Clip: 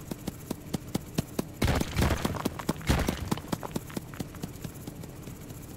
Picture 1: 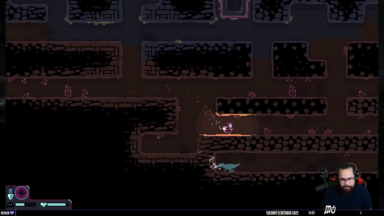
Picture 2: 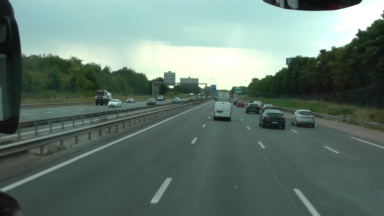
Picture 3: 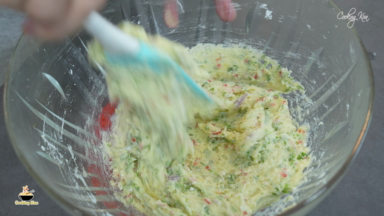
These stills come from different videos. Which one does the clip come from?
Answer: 1